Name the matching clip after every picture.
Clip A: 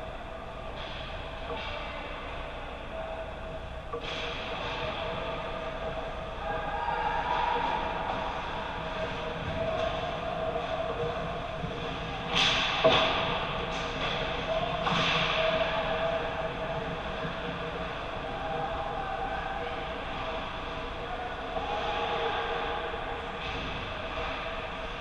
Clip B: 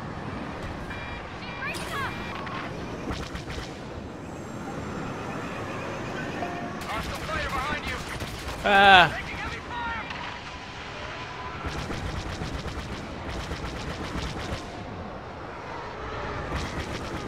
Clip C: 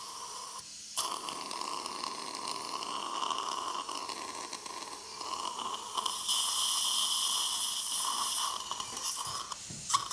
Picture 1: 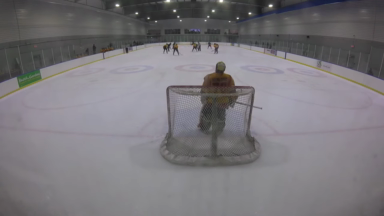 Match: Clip A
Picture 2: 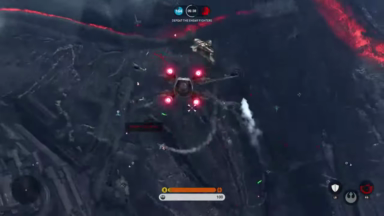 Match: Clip B